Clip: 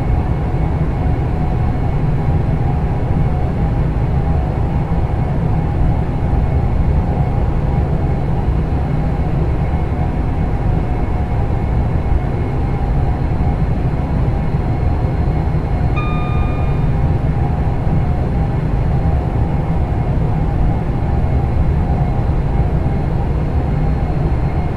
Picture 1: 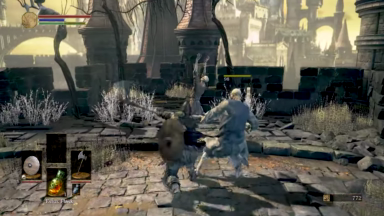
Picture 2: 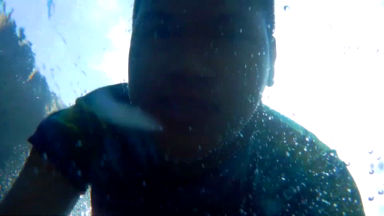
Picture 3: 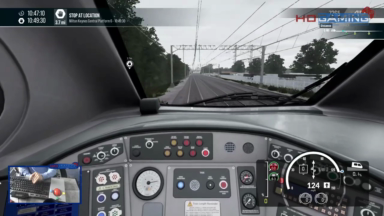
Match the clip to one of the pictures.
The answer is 3